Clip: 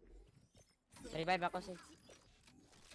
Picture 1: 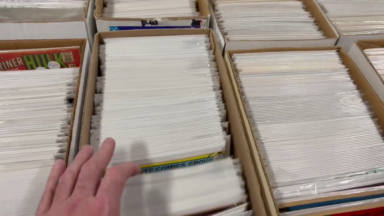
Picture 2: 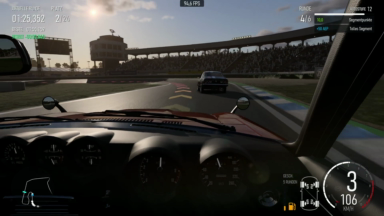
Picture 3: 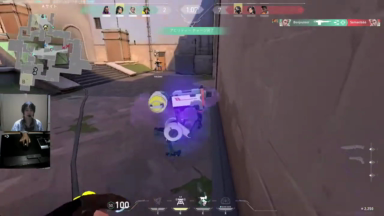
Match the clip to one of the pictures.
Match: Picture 3